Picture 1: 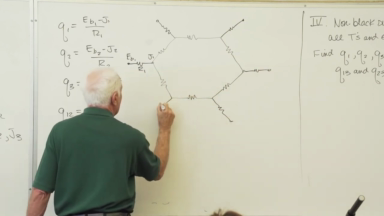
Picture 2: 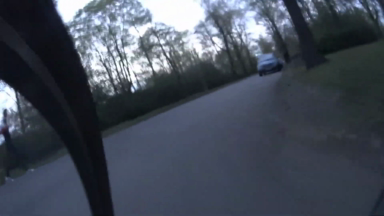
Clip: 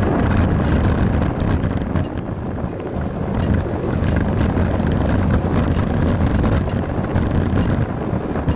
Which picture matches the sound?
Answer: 2